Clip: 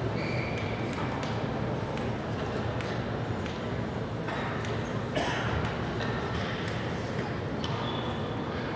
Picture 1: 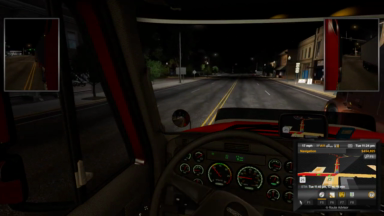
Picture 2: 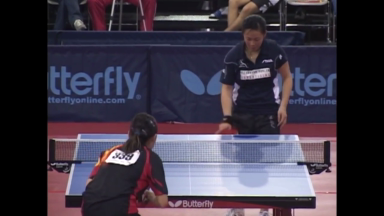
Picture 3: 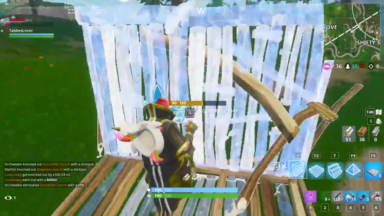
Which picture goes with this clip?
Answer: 2